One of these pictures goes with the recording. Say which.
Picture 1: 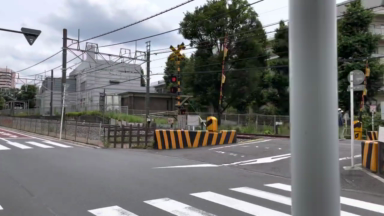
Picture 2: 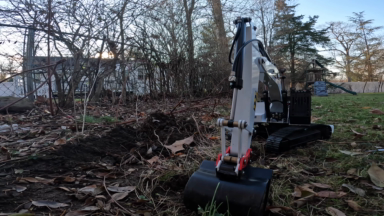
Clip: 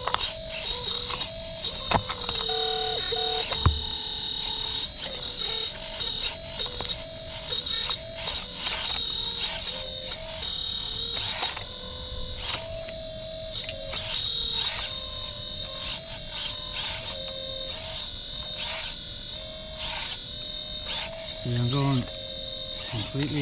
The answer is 2